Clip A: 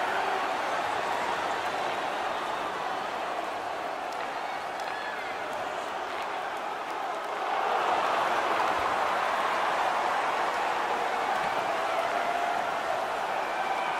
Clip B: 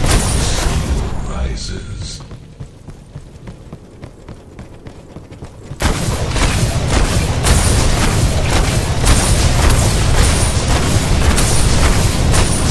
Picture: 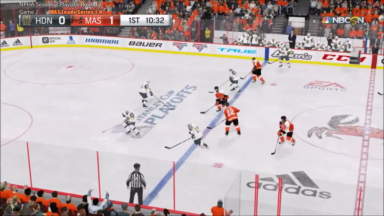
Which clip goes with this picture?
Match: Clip A